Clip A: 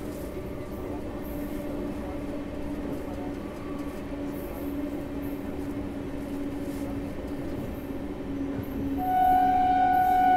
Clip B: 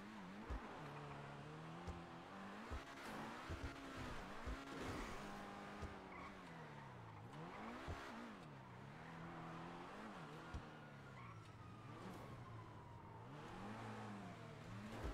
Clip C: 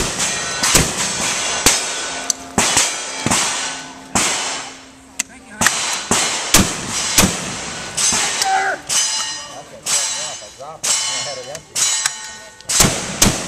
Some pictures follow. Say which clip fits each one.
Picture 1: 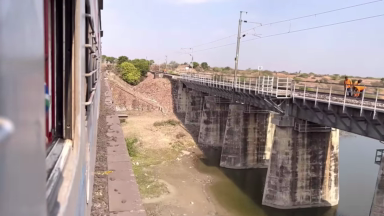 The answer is A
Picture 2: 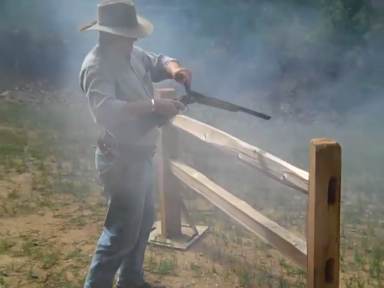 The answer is C